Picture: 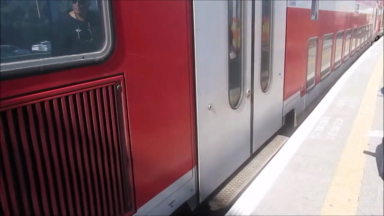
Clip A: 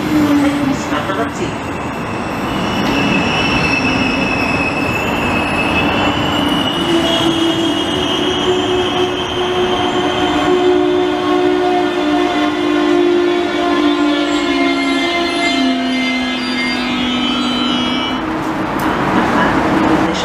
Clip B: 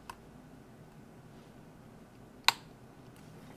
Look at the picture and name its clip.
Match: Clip A